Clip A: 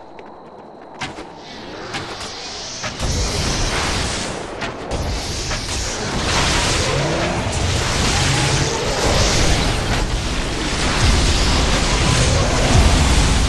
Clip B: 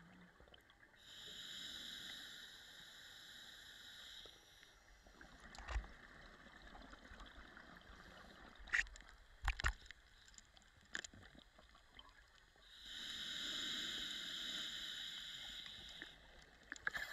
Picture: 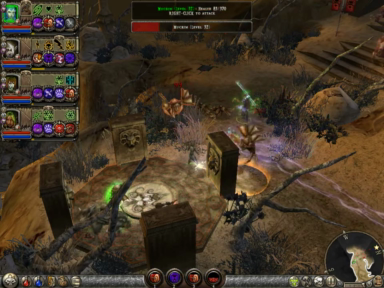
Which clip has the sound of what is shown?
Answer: A